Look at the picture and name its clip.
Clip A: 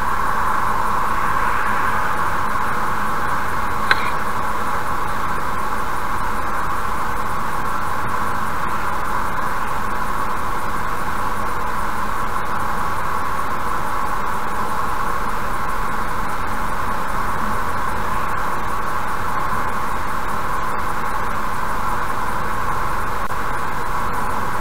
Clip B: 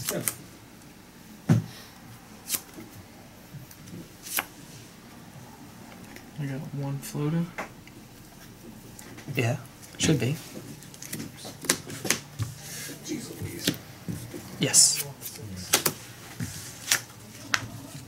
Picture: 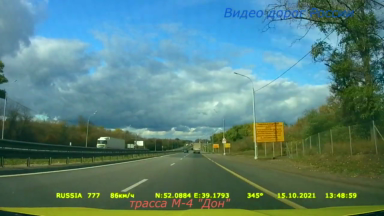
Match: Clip A